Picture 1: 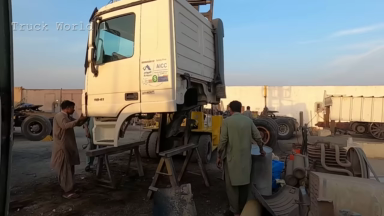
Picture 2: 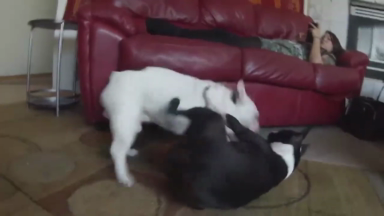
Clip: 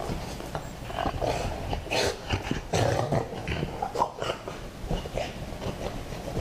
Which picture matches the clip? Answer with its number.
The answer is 2